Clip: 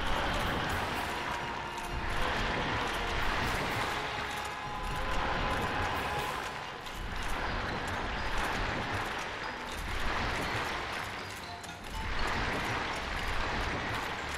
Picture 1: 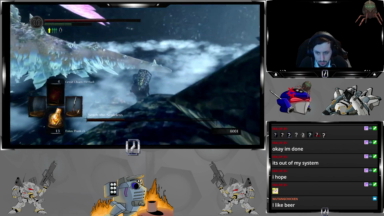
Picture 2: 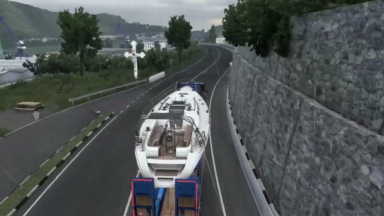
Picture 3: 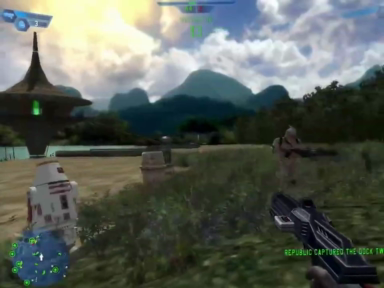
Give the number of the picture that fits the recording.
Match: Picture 1